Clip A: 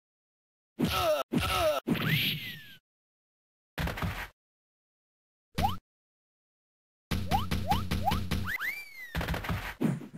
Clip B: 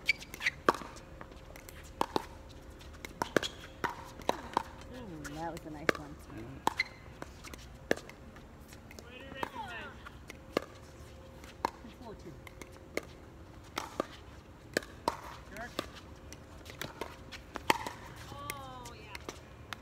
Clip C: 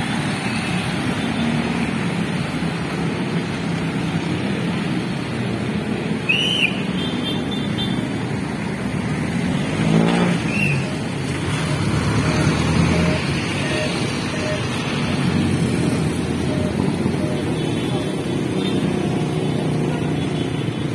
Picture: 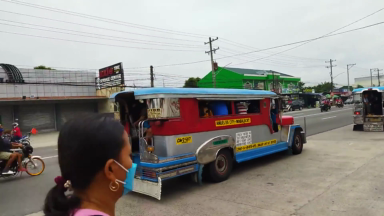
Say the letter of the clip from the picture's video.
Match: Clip C